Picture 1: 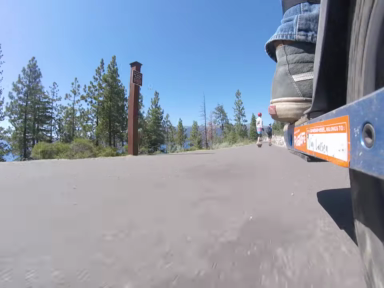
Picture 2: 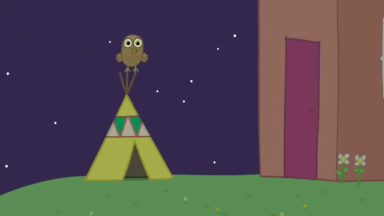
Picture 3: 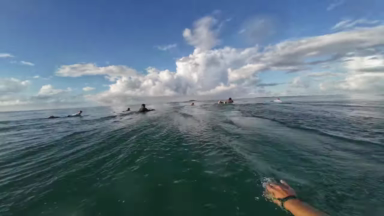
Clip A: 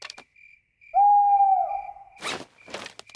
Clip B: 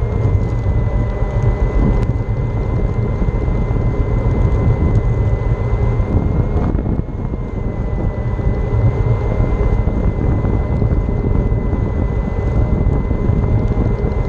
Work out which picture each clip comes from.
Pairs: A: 2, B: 1